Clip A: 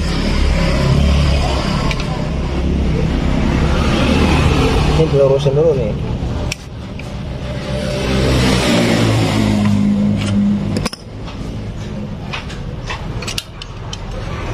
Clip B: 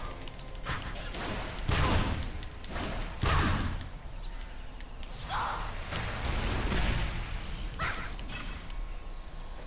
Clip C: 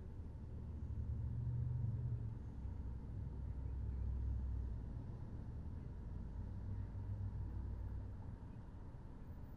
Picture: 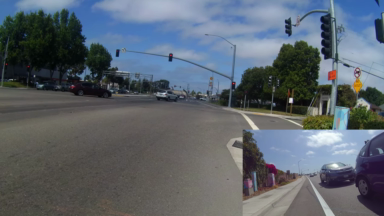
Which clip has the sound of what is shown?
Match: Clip C